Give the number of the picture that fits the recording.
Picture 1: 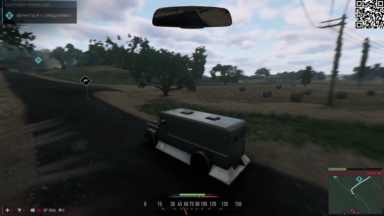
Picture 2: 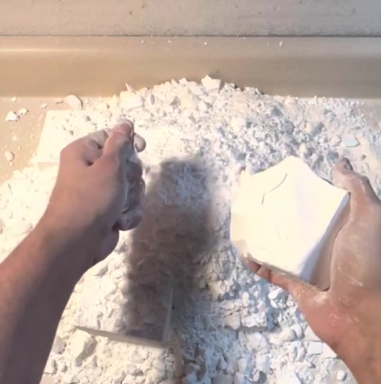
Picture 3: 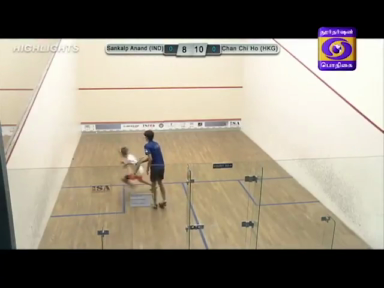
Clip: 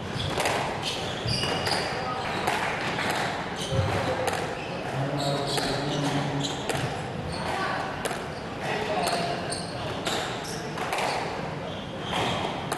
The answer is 3